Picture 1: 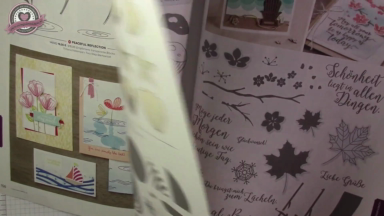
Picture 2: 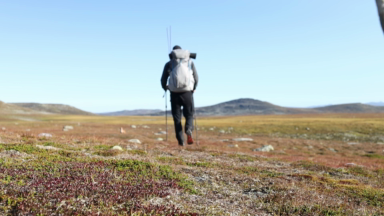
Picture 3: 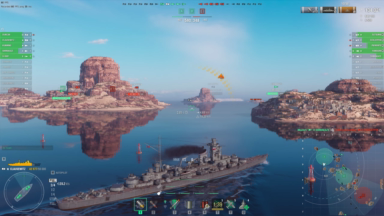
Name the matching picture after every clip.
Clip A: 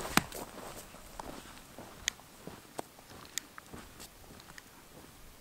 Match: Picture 2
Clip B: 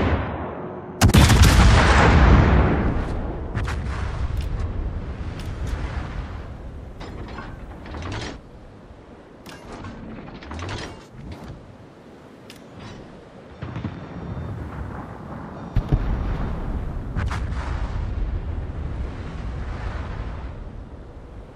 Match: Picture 3